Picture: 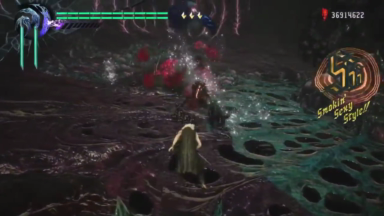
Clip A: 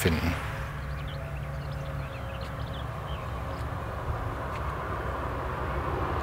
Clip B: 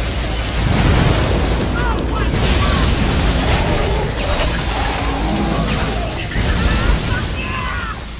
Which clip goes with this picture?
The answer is B